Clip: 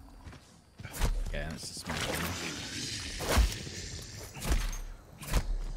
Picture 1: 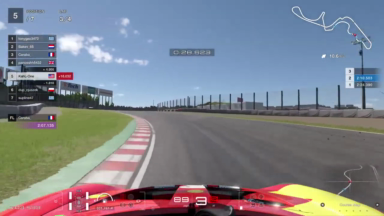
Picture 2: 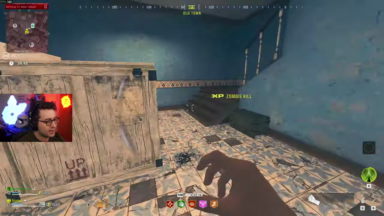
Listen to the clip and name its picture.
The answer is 2